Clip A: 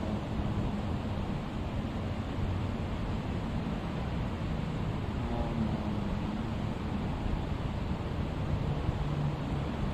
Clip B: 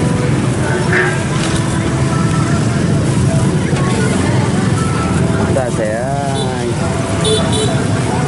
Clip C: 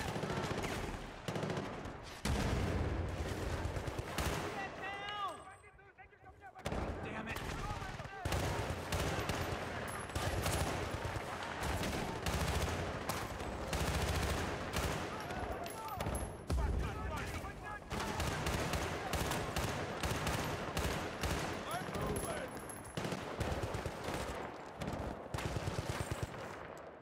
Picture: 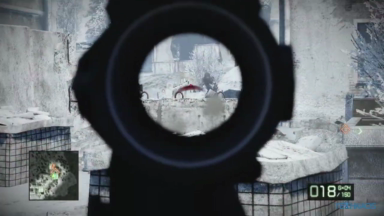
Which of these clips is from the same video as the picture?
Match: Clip C